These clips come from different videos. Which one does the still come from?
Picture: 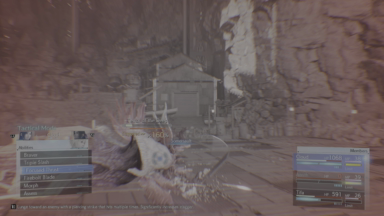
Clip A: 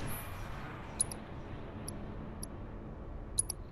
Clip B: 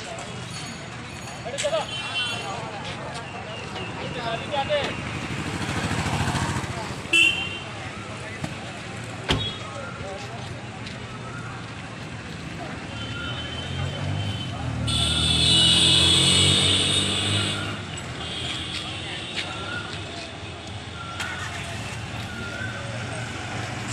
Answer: A